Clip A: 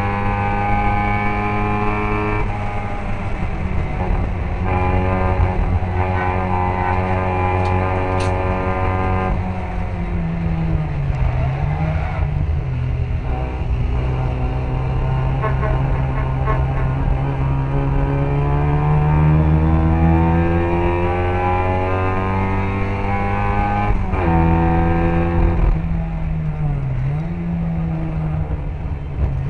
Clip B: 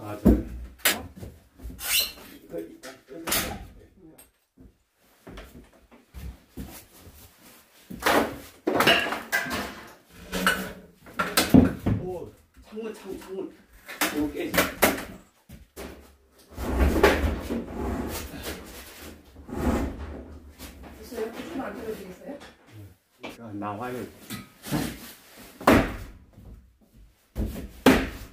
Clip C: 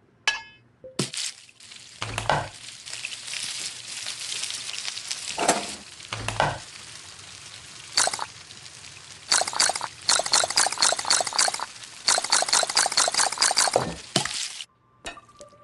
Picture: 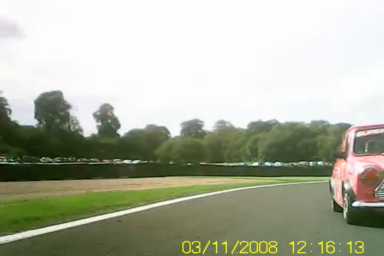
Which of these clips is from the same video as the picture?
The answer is A